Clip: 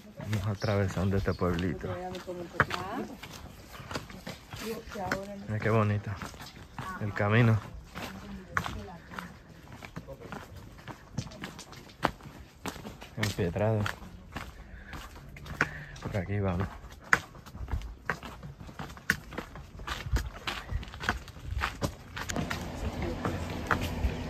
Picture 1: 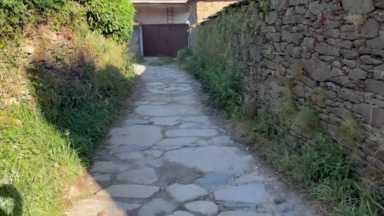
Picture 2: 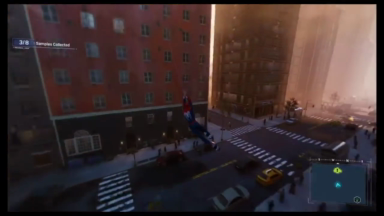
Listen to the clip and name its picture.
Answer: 1